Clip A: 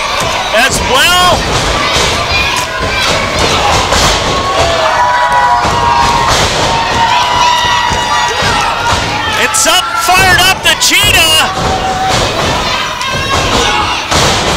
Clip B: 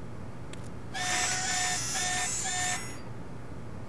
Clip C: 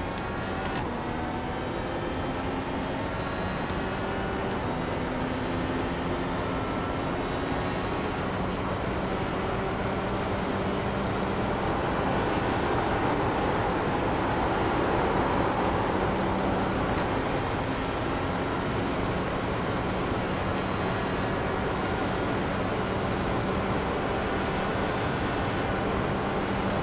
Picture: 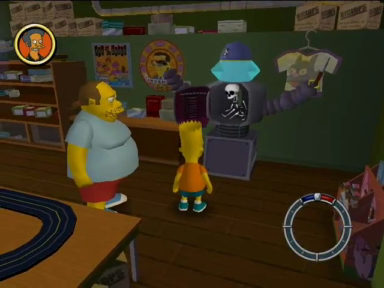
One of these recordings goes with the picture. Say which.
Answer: B